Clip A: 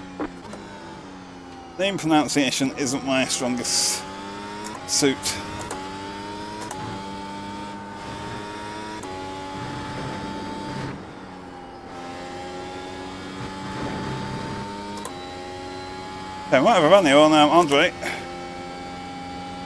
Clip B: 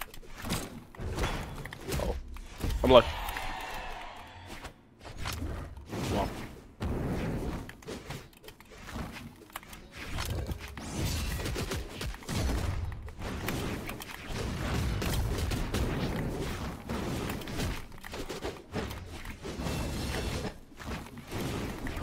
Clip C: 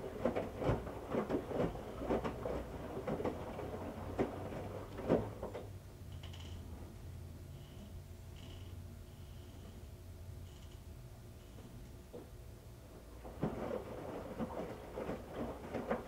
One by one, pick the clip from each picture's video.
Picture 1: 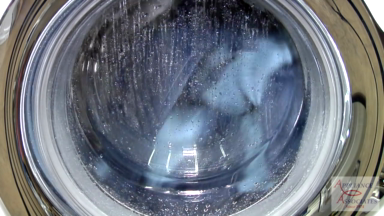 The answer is C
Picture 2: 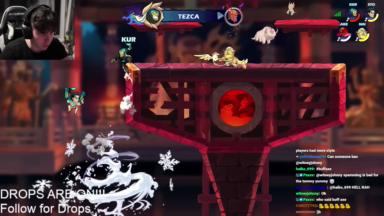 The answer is B